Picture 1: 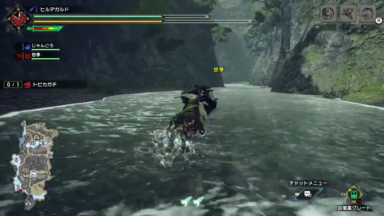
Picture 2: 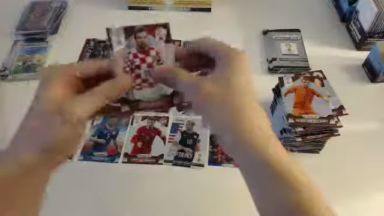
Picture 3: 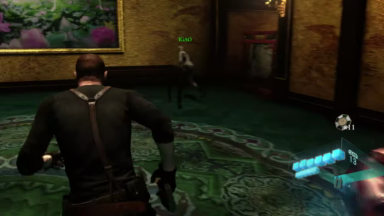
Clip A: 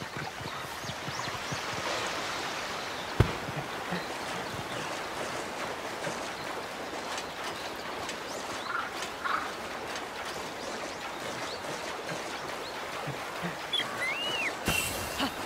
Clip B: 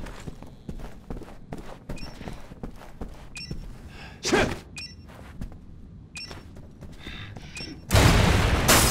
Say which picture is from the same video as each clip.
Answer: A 1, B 3